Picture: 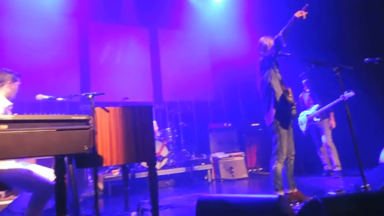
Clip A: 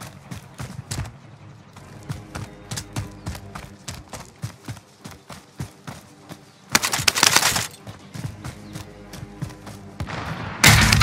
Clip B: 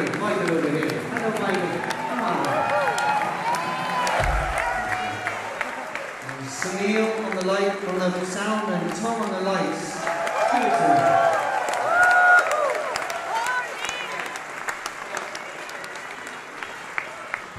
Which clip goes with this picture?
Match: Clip B